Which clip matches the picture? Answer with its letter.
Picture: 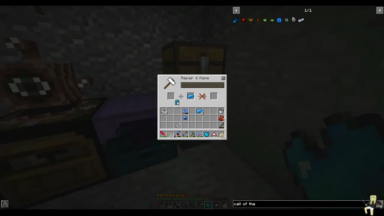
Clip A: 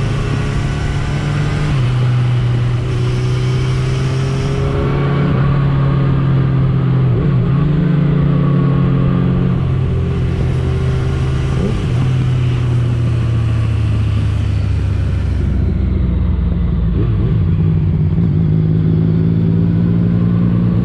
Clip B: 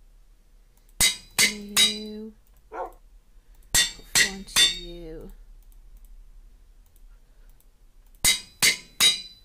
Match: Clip B